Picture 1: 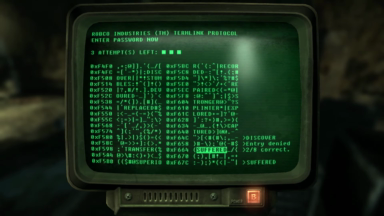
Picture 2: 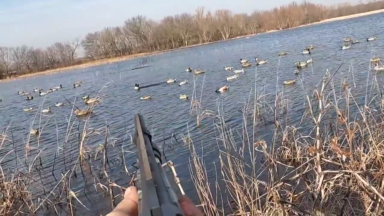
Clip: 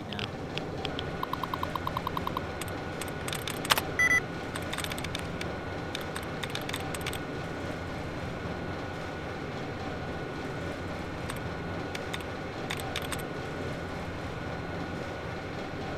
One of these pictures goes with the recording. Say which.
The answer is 1